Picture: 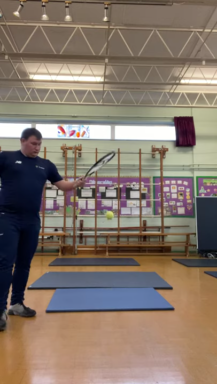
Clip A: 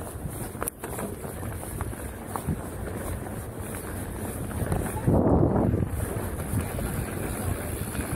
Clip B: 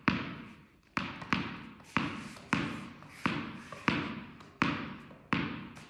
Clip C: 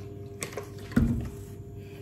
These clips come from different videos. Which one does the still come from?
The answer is B